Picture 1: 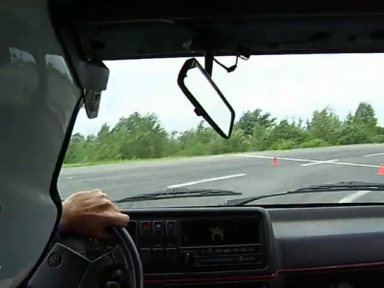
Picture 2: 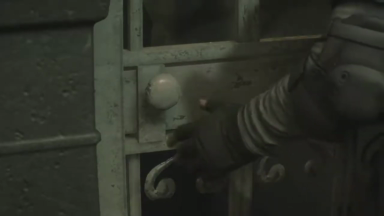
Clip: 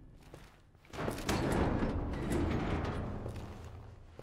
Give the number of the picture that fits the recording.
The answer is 2